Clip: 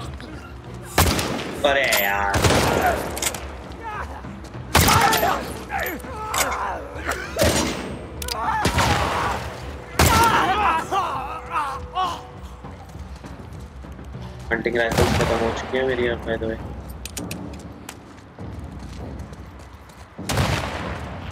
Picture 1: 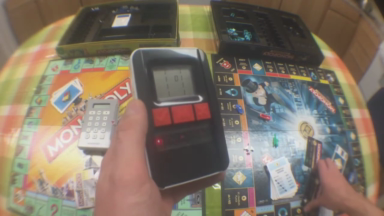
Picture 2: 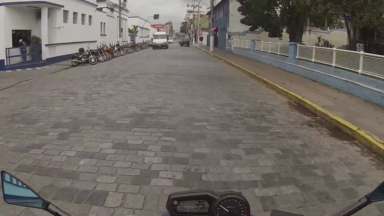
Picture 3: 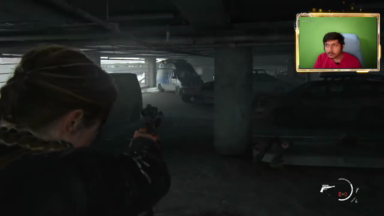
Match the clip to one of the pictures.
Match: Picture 3